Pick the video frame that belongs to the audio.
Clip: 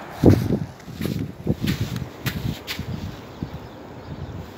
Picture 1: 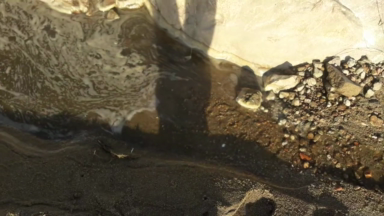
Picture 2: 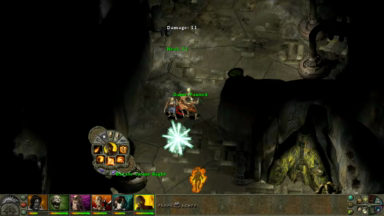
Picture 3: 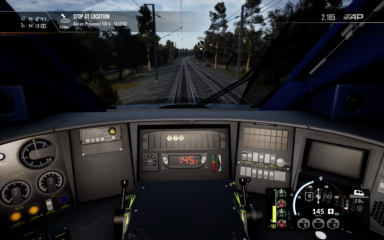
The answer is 1